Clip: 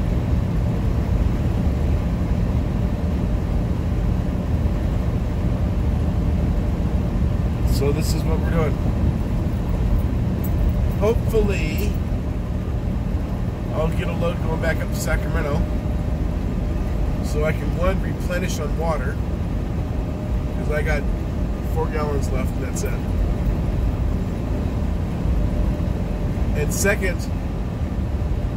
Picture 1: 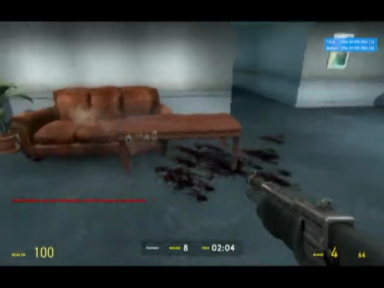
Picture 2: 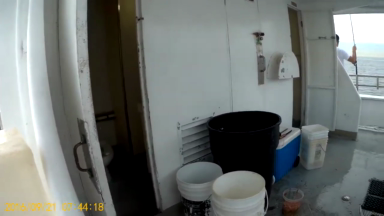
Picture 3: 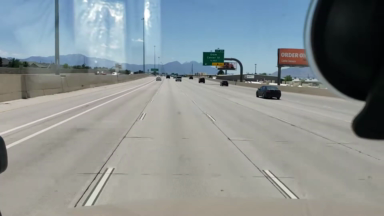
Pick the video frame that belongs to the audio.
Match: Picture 3